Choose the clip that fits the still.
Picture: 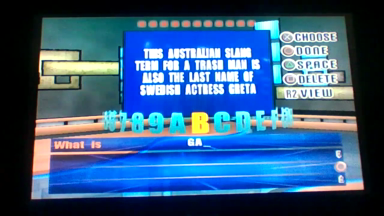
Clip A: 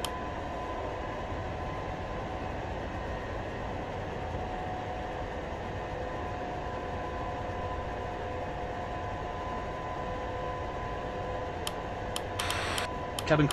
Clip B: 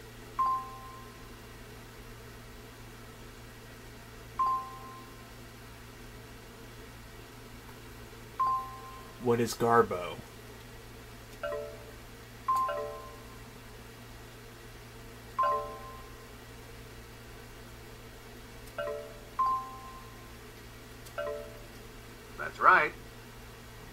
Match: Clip B